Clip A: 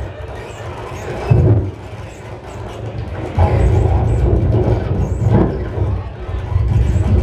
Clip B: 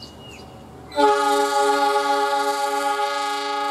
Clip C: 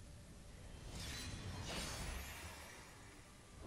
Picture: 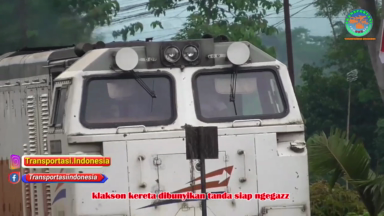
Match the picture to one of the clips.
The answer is B